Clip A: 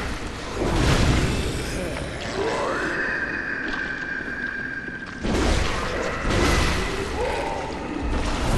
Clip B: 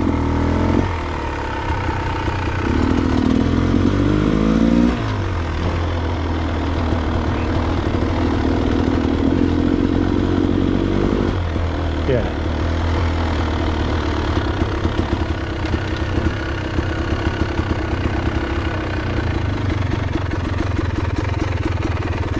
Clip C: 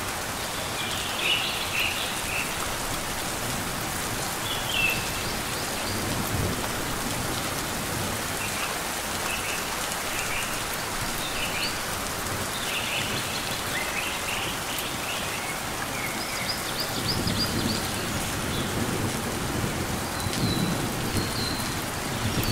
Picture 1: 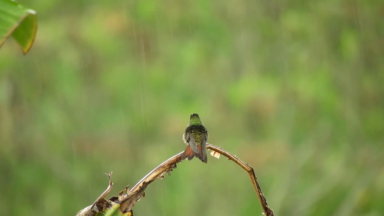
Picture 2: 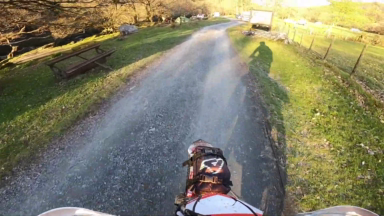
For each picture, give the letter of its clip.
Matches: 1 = C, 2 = B